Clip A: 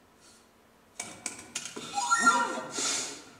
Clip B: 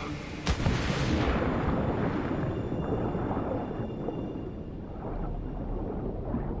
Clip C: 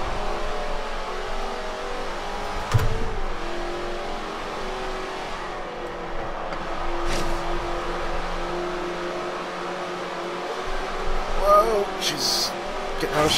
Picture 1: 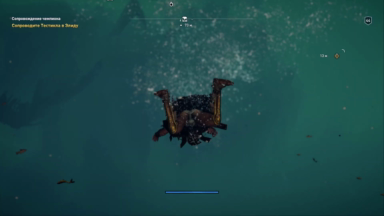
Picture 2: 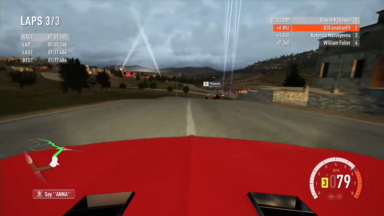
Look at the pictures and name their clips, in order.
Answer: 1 B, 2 C